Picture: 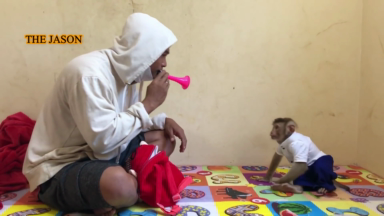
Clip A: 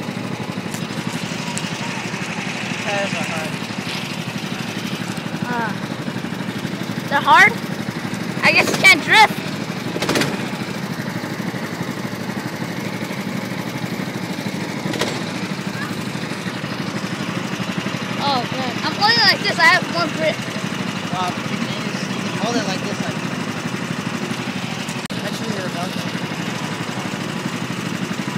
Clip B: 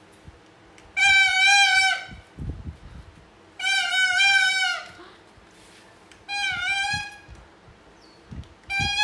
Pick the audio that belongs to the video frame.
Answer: B